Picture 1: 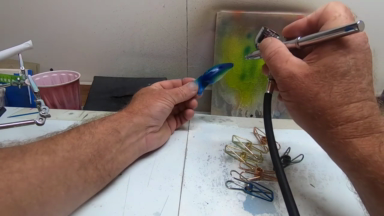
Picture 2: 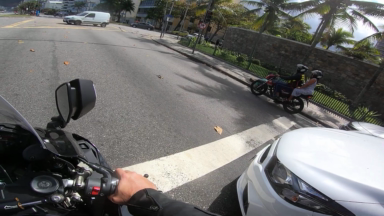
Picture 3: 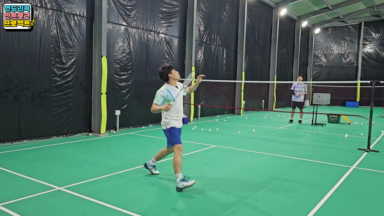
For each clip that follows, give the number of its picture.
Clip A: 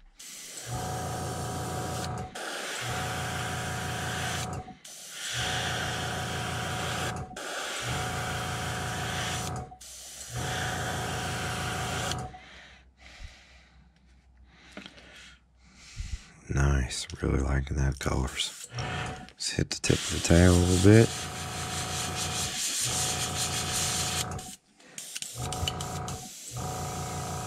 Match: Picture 1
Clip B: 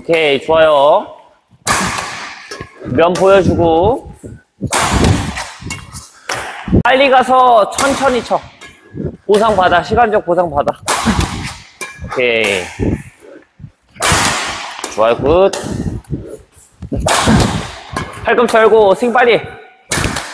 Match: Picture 3